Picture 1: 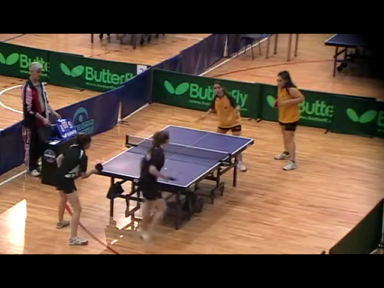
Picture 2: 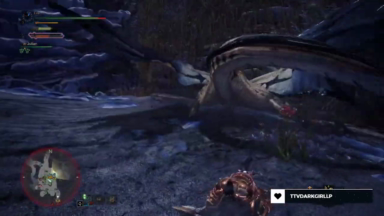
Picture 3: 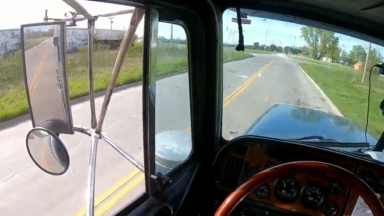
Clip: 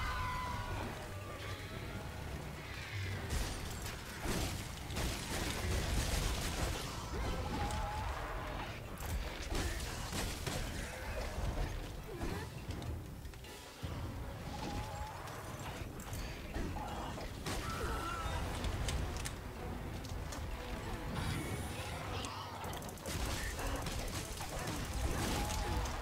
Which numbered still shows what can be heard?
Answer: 2